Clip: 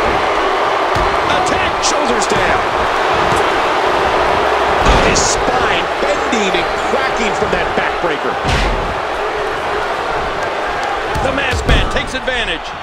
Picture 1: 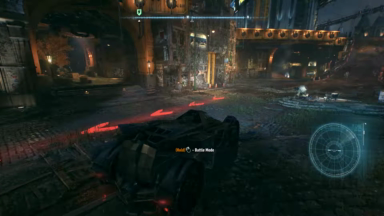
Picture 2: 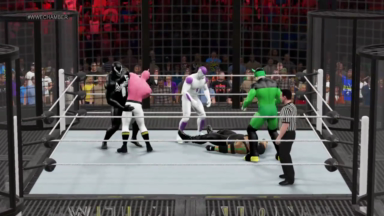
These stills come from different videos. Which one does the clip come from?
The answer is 2